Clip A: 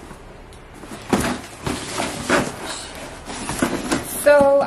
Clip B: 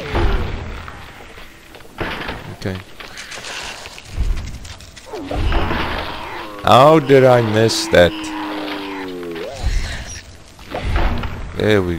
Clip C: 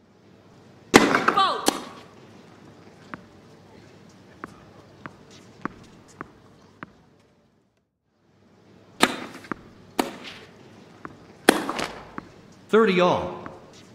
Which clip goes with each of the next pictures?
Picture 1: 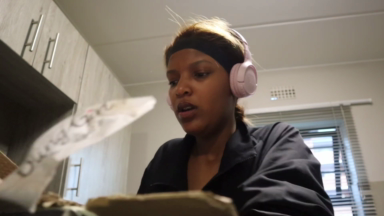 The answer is A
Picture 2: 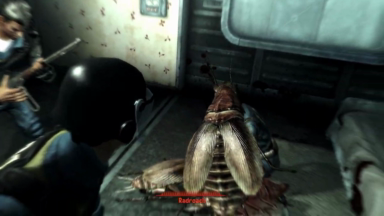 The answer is B